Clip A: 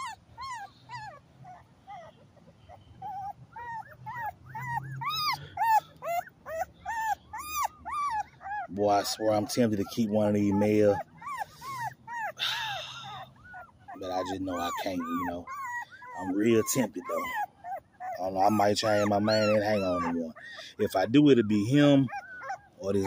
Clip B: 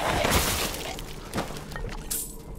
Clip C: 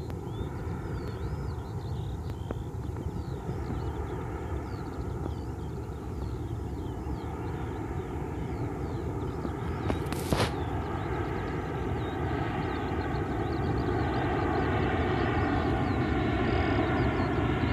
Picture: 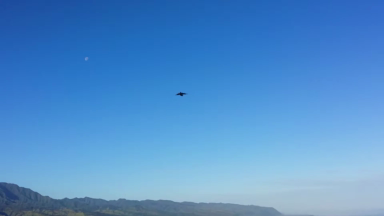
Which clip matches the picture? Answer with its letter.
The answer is C